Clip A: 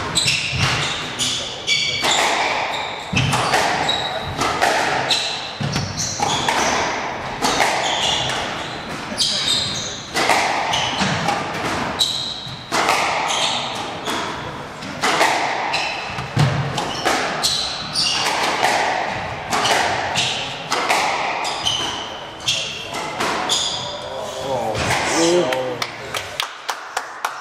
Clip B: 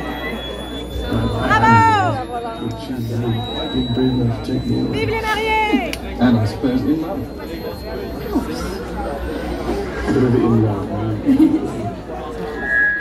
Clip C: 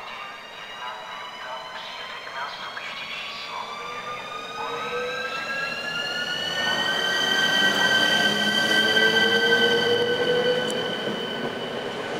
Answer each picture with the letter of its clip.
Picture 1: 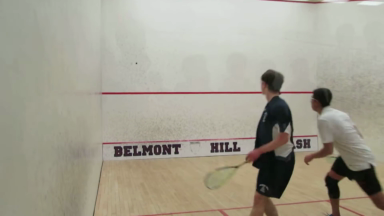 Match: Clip A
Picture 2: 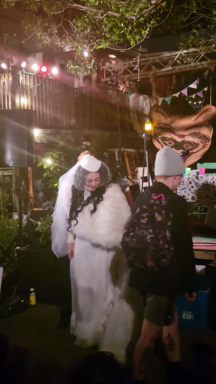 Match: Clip B